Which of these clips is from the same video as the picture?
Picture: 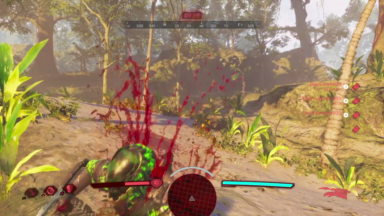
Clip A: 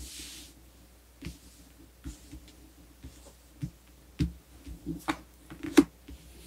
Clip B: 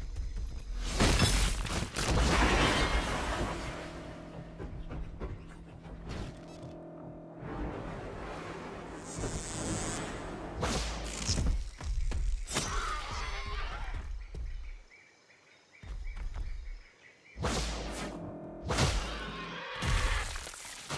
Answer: B